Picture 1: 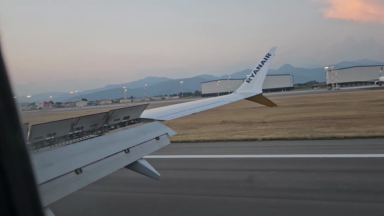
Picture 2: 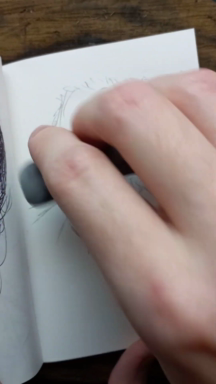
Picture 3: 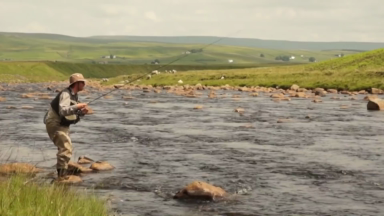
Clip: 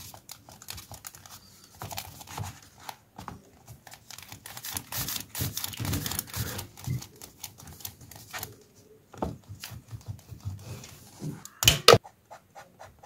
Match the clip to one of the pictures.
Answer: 2